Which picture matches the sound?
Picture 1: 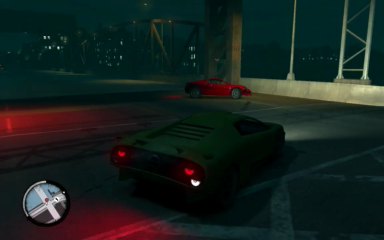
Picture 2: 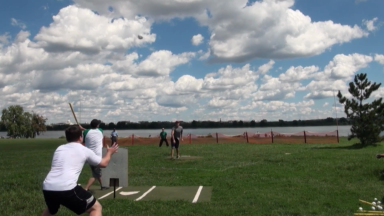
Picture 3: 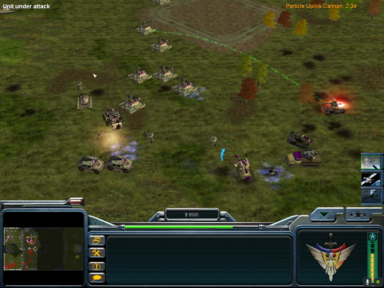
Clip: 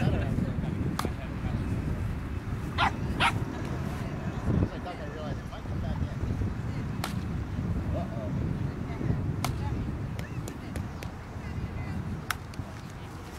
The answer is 2